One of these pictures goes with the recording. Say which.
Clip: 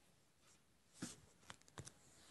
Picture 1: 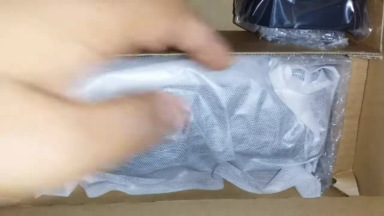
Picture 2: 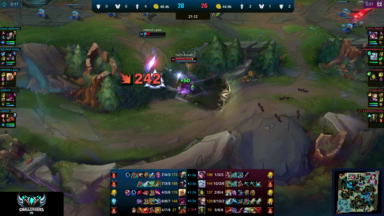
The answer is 1